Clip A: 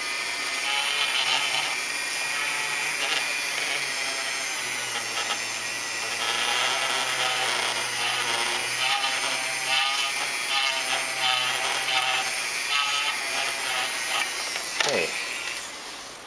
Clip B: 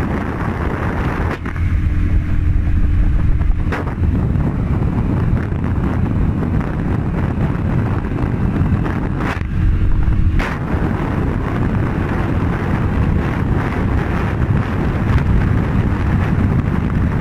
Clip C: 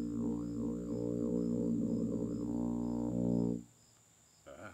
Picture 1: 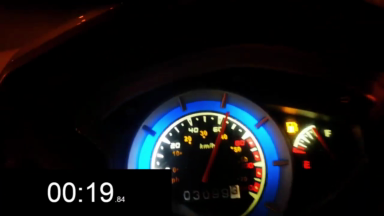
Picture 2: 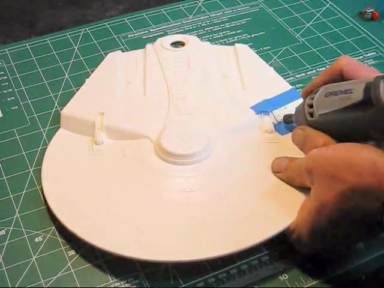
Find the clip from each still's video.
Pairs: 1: B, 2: A